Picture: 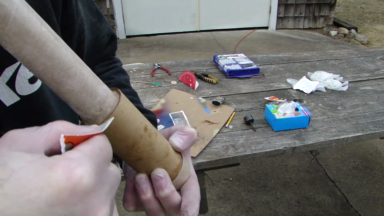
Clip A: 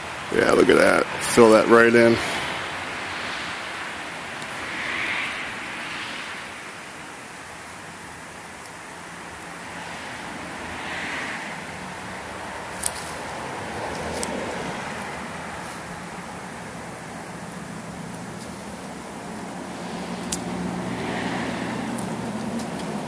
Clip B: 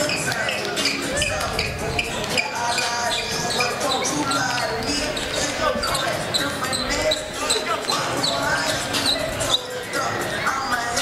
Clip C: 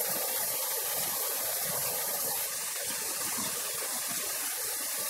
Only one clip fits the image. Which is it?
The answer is A